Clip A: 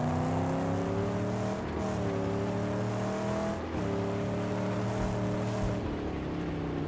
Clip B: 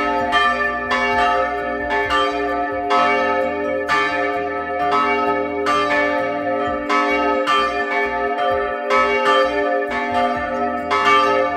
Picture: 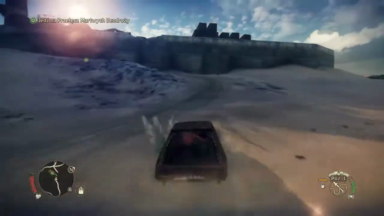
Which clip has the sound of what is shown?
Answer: A